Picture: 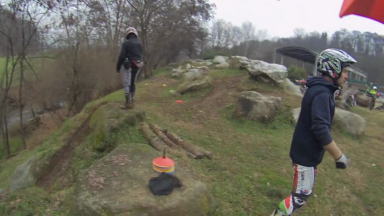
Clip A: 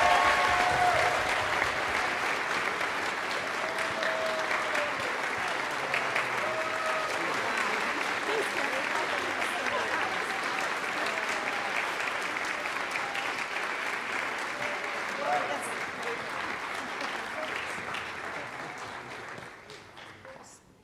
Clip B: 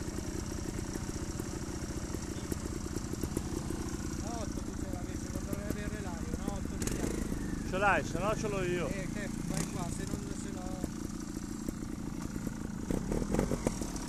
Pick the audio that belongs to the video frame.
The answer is B